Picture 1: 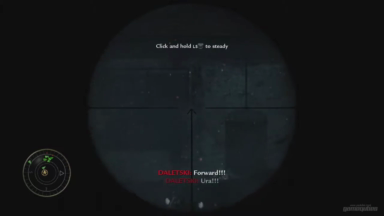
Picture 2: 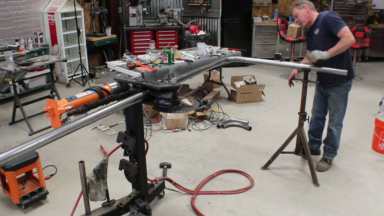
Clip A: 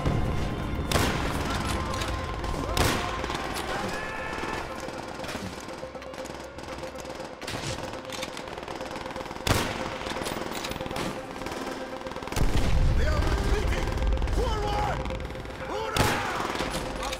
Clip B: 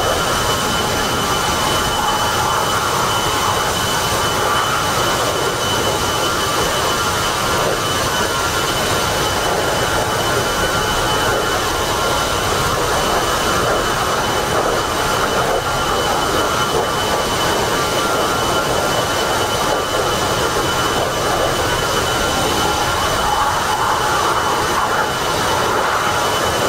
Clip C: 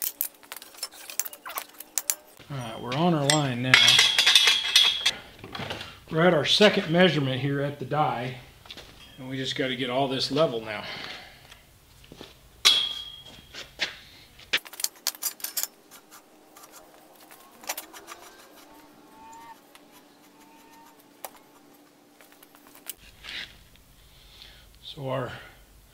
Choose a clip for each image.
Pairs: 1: A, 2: C